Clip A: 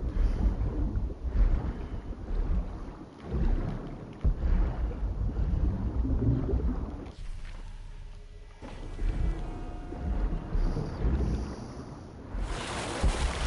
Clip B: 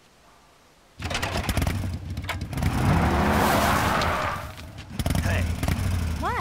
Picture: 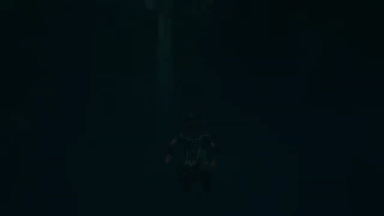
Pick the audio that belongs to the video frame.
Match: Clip A